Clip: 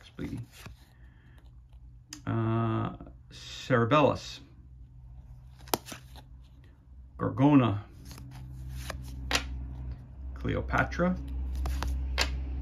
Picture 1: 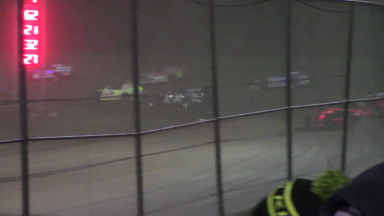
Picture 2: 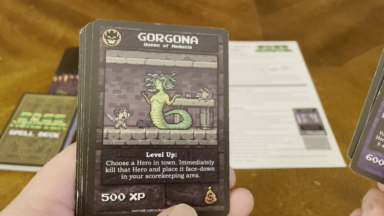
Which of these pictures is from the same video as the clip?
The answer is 2